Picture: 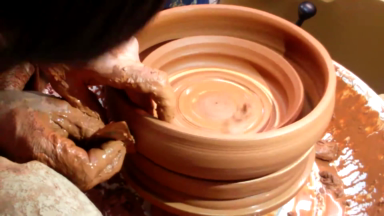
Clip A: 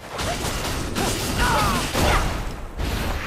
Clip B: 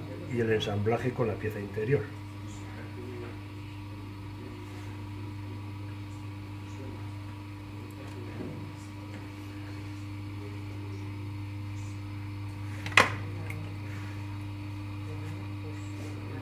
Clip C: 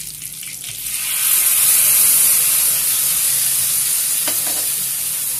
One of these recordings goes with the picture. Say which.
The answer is B